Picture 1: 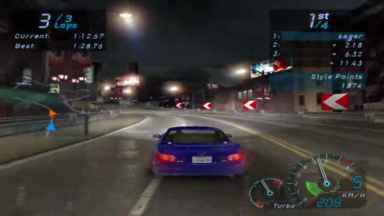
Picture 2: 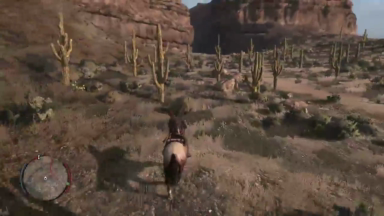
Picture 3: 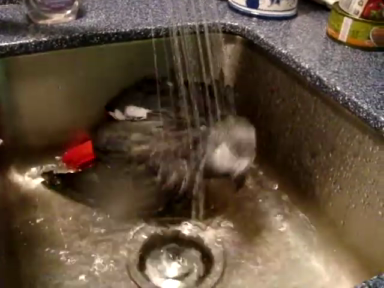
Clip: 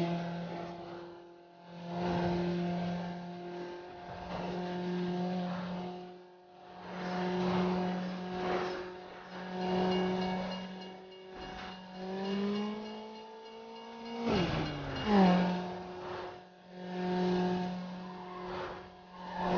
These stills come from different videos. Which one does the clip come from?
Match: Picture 1